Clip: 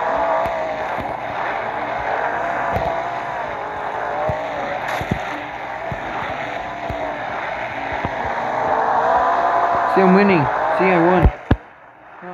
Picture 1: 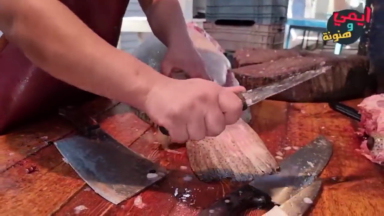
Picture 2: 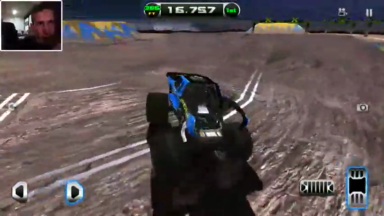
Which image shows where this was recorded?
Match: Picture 2